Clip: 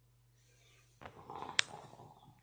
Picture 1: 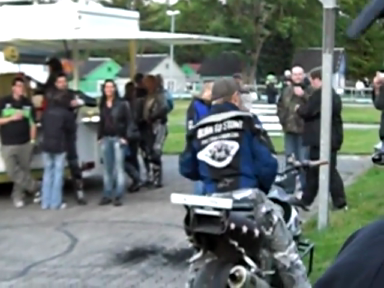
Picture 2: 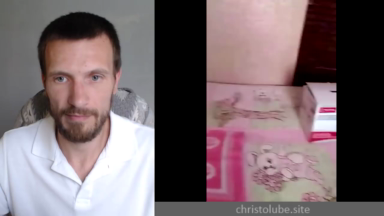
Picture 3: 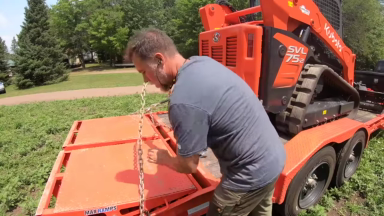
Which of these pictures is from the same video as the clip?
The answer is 2